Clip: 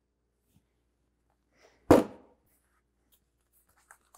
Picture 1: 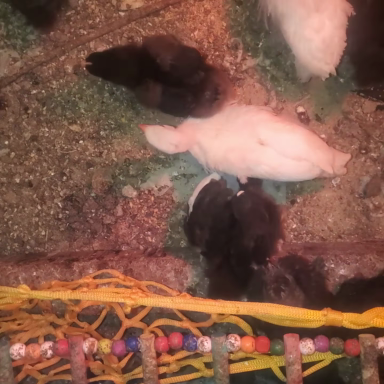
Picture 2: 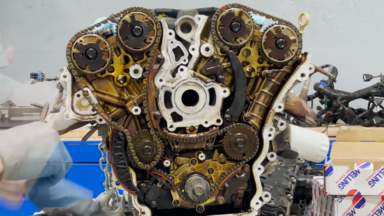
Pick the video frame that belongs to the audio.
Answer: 2